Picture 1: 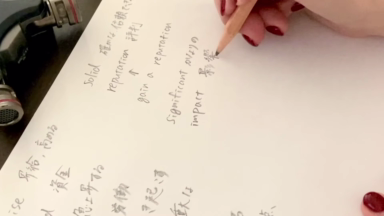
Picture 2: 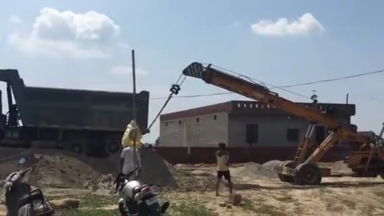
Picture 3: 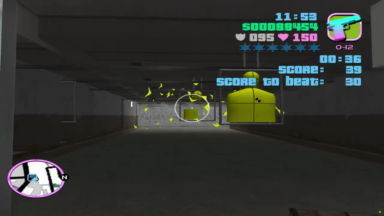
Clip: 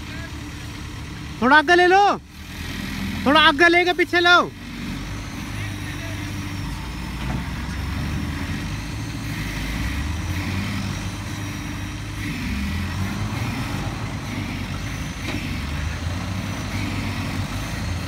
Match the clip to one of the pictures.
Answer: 2